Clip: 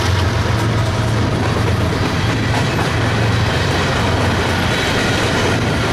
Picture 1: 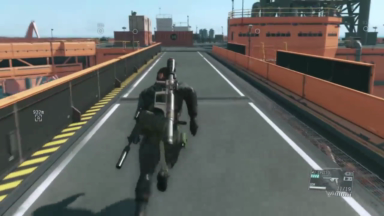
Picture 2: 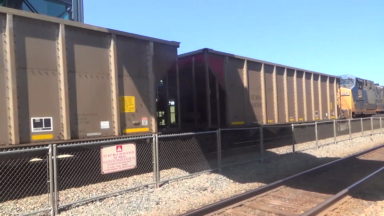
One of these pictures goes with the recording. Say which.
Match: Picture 2